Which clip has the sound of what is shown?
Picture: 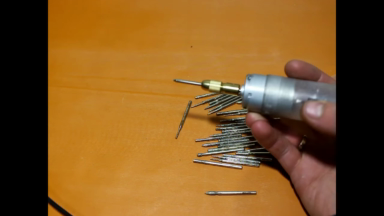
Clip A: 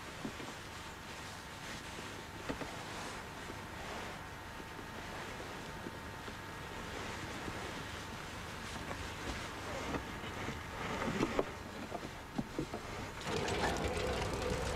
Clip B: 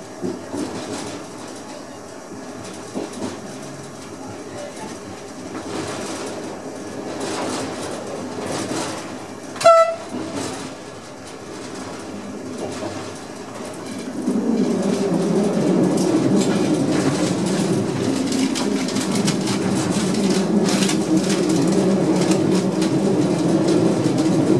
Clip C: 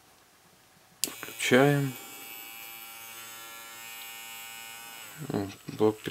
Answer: C